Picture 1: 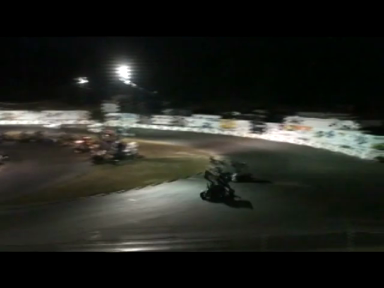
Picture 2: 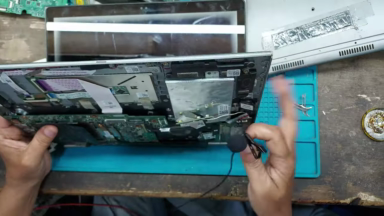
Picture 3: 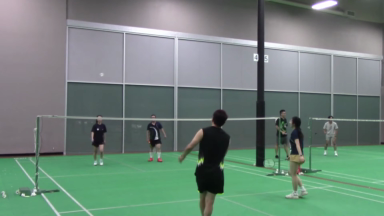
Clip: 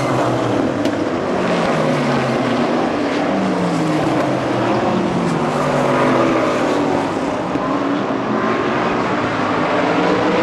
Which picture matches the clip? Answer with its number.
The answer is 1